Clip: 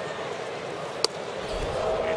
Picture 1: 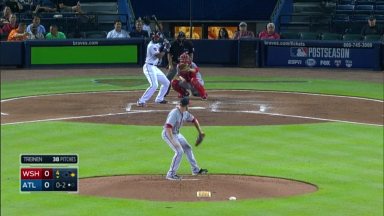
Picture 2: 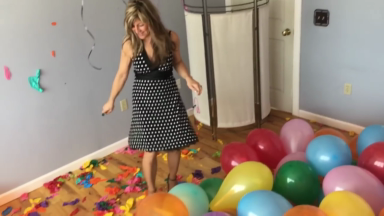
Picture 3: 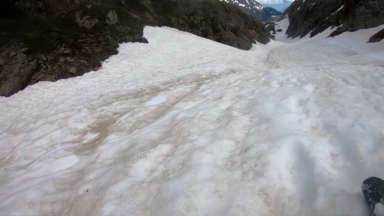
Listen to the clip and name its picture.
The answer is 1